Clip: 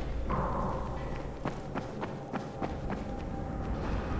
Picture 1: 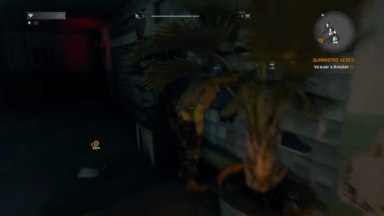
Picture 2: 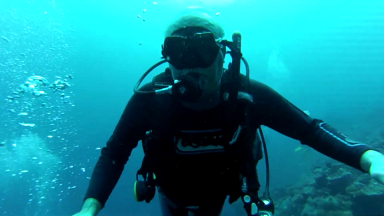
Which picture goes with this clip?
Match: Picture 1